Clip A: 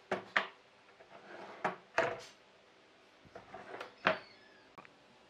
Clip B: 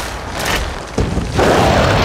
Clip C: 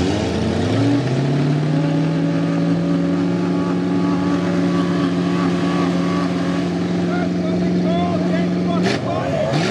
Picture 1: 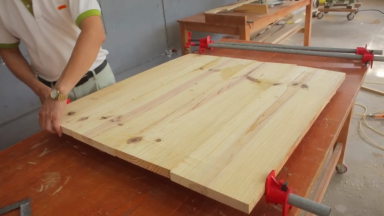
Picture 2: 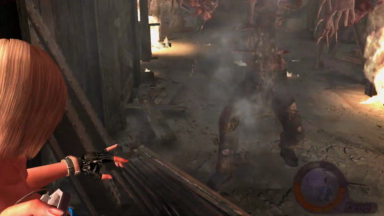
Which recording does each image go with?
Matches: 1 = A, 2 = B